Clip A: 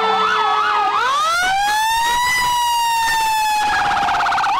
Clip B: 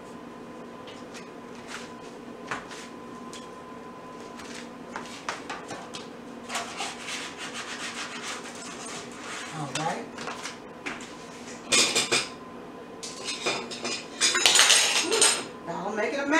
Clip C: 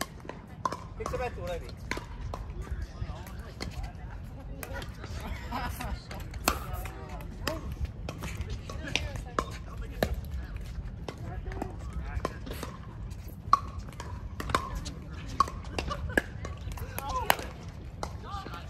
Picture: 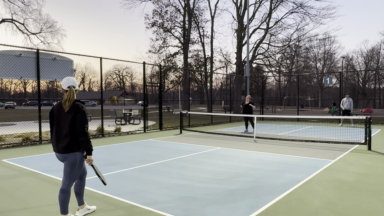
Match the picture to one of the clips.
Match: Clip C